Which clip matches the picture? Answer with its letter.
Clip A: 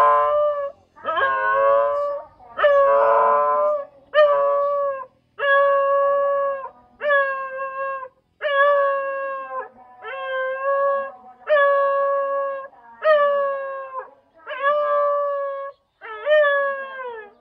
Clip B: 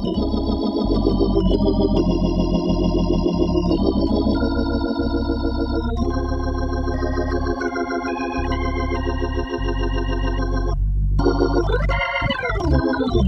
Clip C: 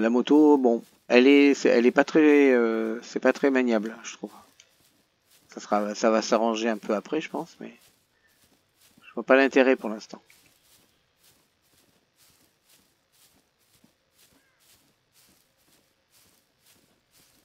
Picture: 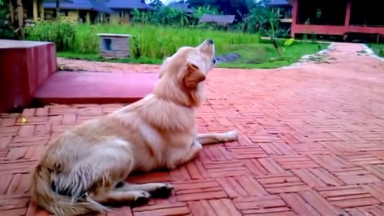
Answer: A